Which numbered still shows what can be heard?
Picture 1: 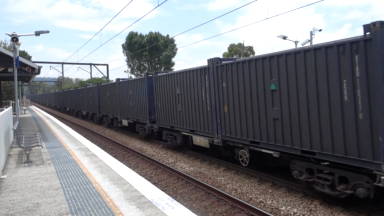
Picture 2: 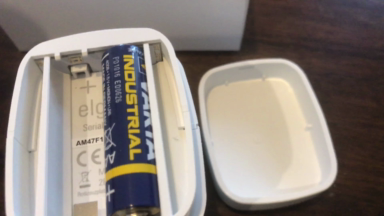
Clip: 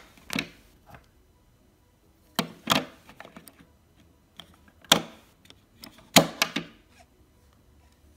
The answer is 2